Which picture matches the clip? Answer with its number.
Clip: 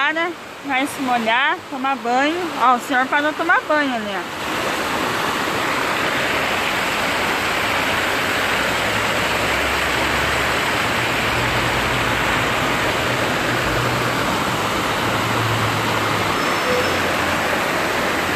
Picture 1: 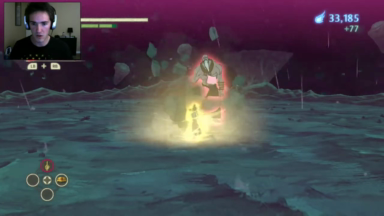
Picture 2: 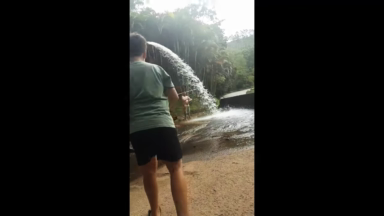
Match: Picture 2